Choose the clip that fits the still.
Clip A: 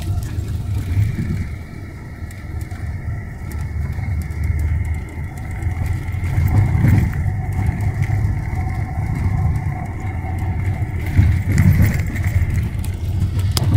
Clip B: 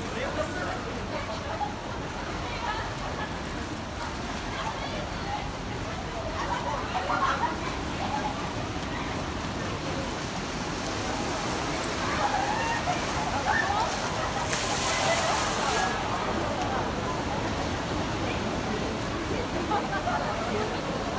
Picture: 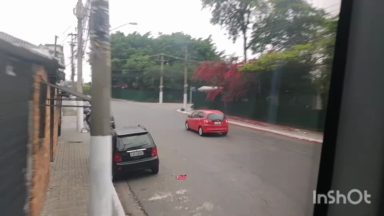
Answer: A